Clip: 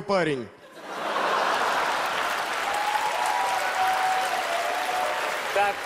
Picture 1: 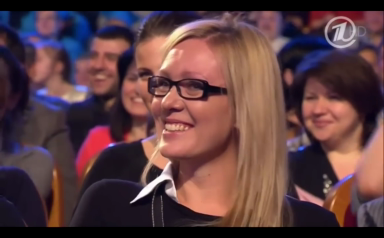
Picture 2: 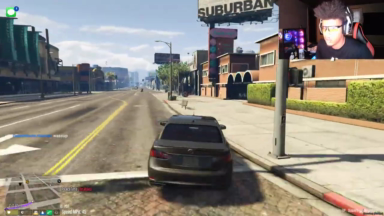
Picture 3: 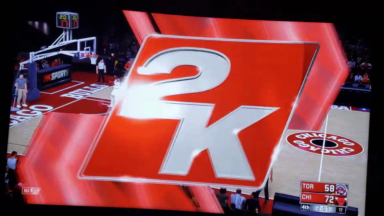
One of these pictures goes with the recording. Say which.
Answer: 1